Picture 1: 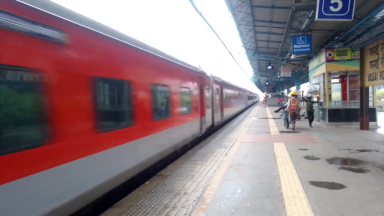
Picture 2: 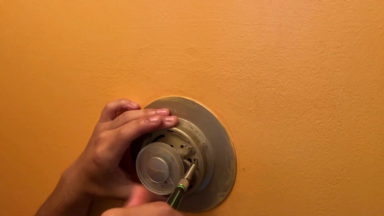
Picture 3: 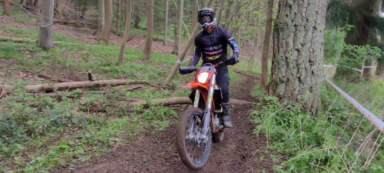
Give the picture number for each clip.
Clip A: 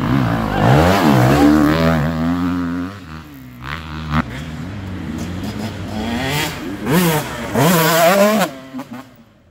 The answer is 3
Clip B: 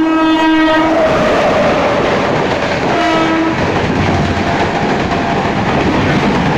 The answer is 1